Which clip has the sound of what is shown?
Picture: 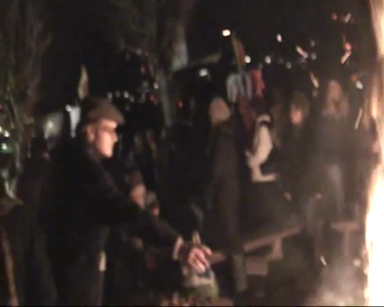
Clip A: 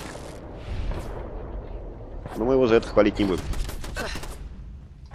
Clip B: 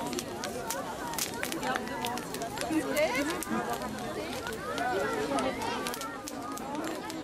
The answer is B